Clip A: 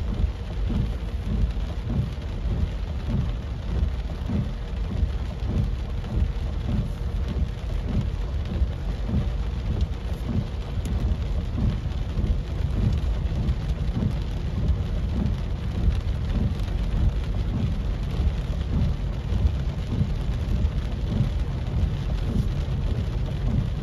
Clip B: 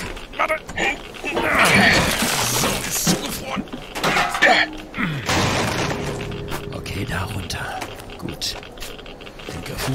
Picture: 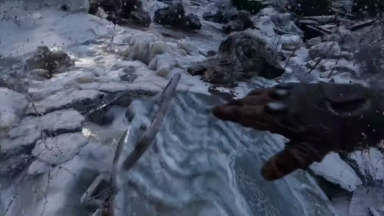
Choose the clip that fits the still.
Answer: B